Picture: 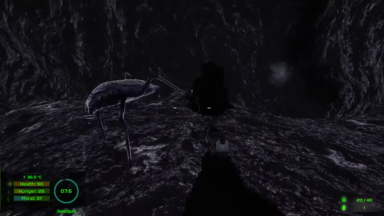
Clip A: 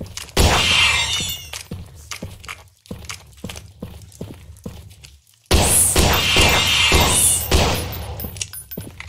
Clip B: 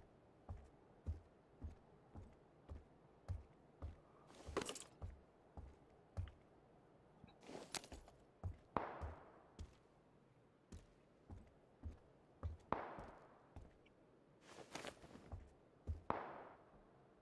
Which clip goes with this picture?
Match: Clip A